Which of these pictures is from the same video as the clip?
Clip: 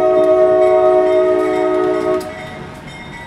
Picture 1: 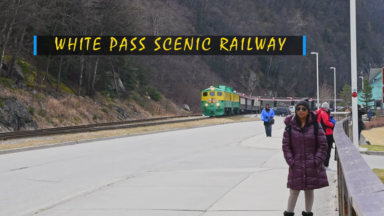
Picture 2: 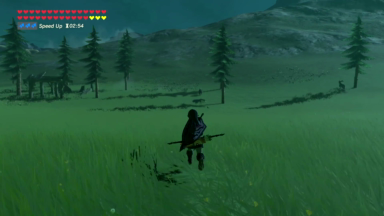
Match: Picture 1